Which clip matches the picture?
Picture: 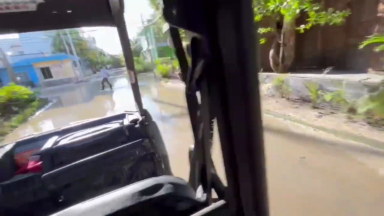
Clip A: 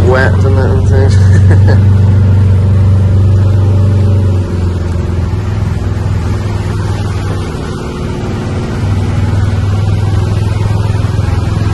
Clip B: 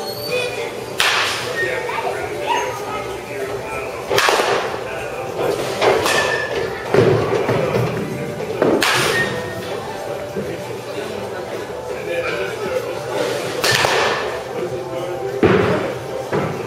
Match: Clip A